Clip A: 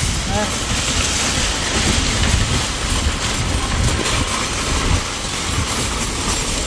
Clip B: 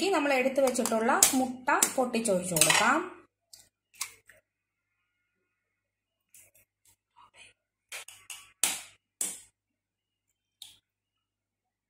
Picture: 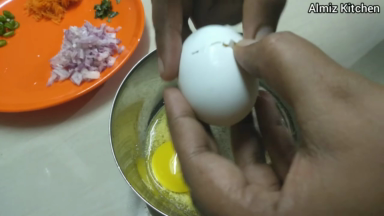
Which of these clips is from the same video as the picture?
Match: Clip B